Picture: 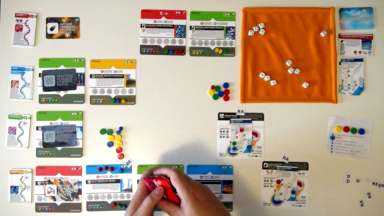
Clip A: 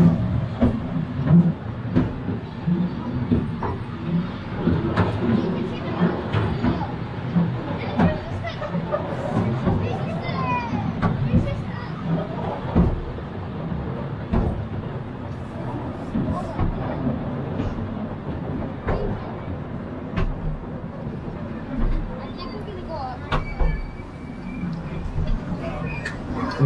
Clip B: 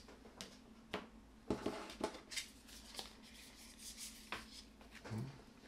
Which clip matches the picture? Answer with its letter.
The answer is B